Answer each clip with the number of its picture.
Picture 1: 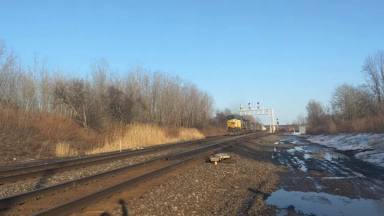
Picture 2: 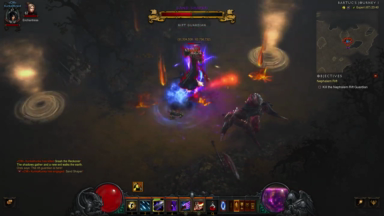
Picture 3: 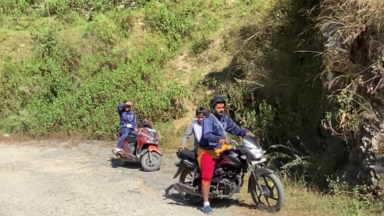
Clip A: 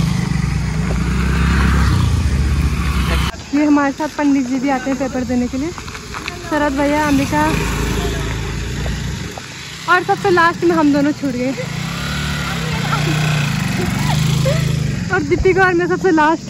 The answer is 3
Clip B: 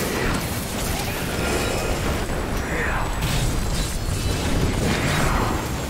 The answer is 2